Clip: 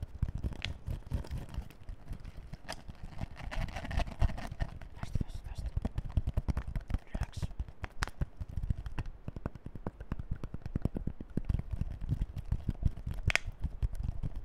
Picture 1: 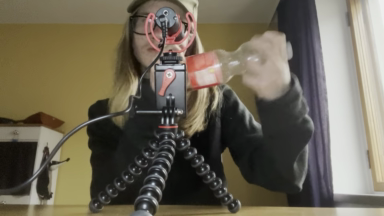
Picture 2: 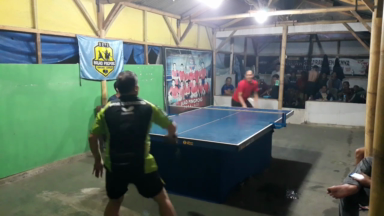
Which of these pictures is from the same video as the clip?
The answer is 1